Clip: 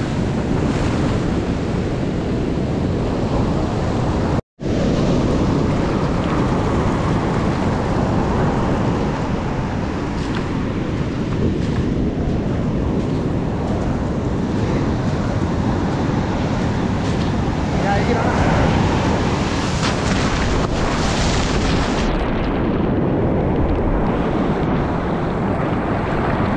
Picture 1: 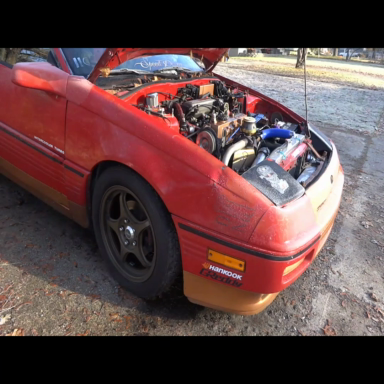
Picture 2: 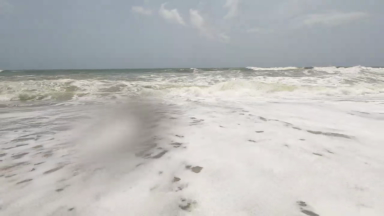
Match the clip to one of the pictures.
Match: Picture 2